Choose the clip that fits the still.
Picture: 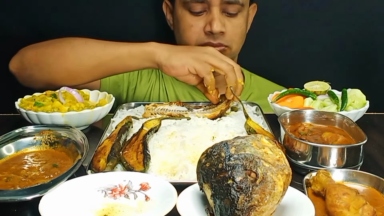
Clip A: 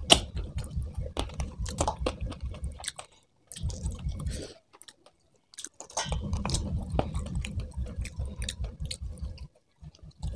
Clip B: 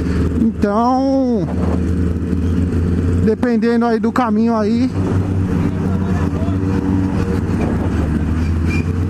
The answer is A